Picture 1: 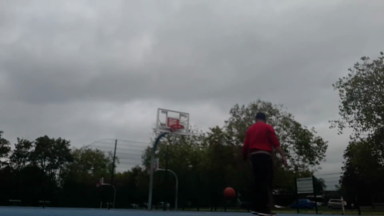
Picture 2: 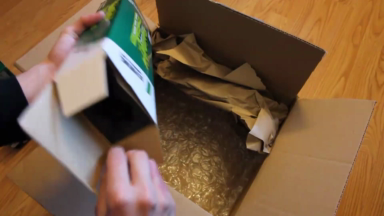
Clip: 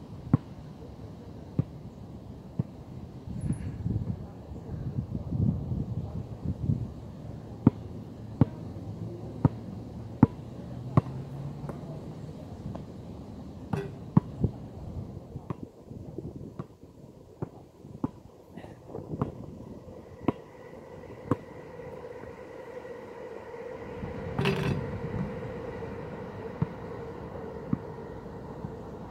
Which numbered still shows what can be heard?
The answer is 1